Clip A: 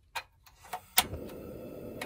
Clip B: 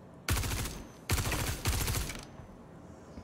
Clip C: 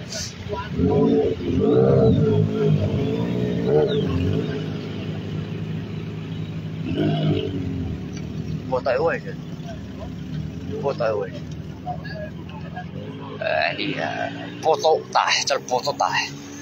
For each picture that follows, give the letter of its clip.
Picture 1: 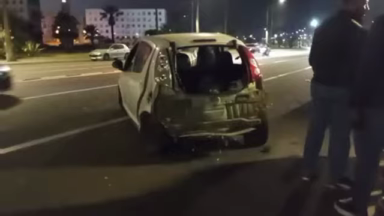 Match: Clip C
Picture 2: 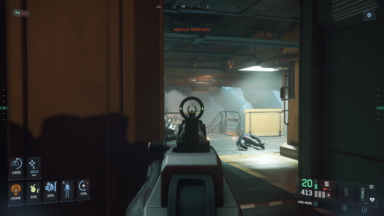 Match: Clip B